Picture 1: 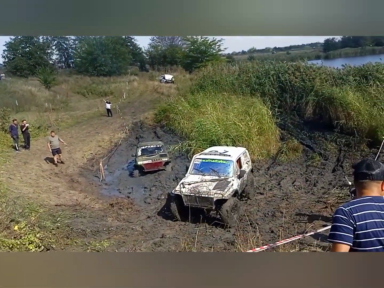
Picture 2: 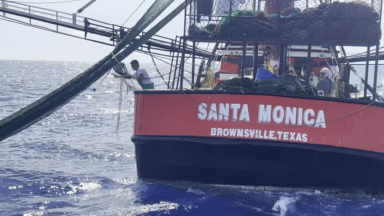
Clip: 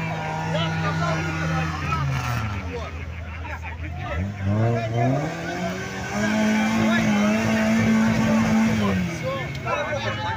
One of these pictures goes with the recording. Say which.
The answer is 1